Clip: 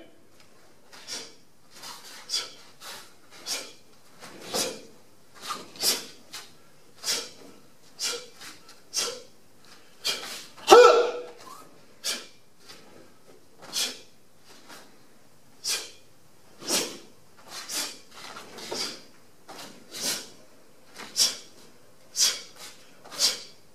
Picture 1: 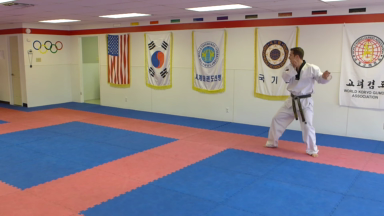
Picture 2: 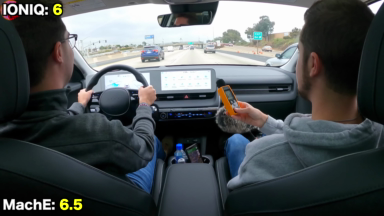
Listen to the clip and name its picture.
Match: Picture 1